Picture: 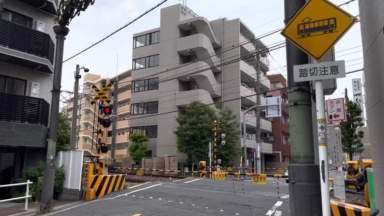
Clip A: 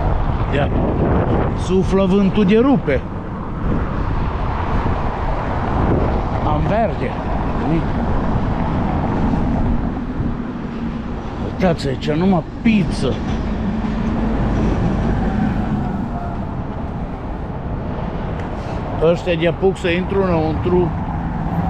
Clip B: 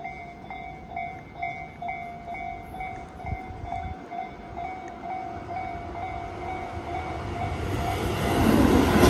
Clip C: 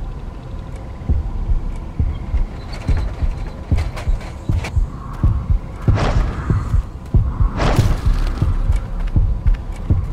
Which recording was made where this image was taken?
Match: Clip B